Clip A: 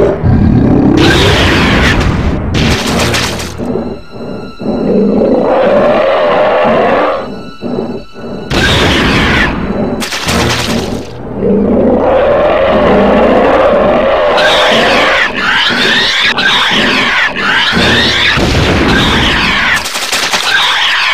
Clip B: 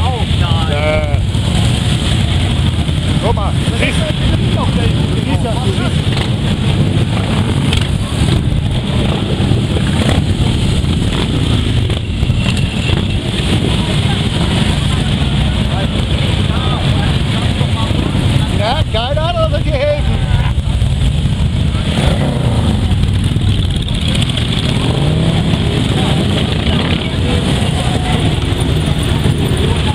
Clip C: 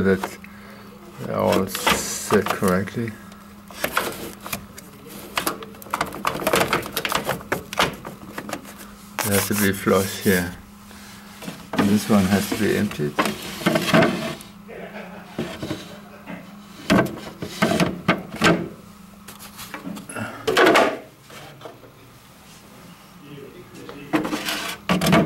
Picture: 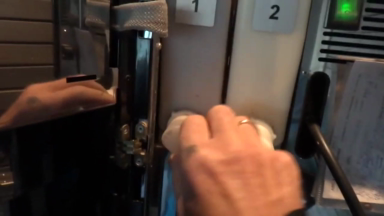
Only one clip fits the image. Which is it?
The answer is C